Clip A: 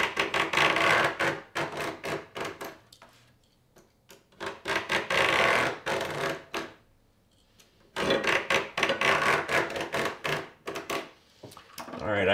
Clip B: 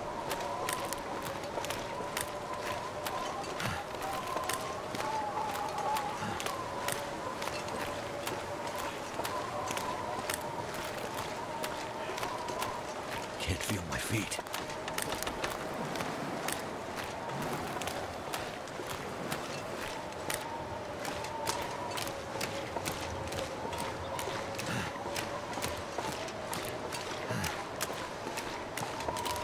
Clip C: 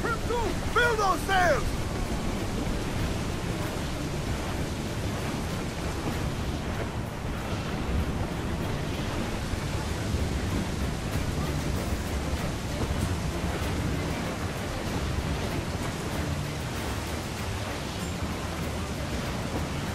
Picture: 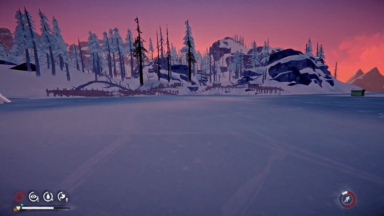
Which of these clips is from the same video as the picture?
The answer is B